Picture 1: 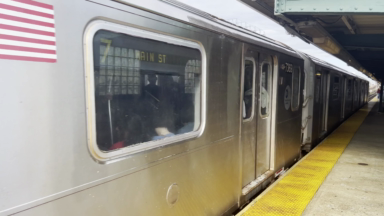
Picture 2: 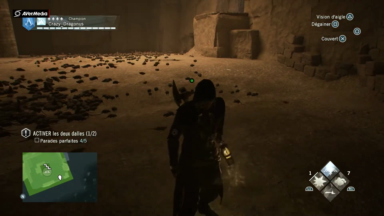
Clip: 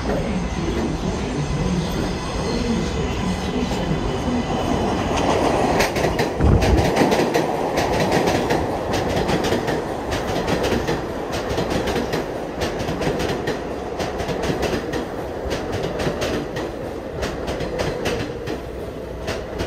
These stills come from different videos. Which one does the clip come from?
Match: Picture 1